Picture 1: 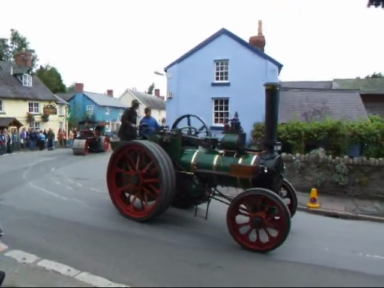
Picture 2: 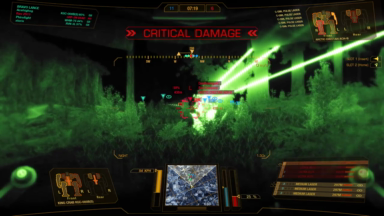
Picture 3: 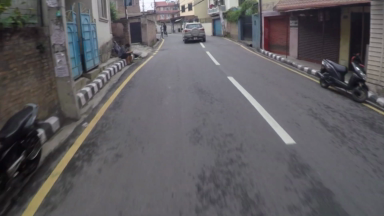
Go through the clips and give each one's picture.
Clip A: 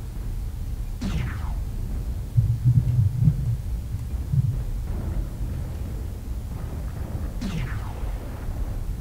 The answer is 2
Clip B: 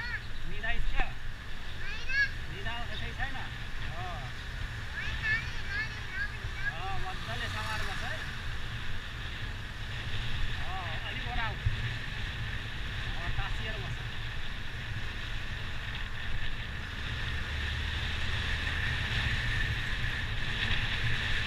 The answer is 3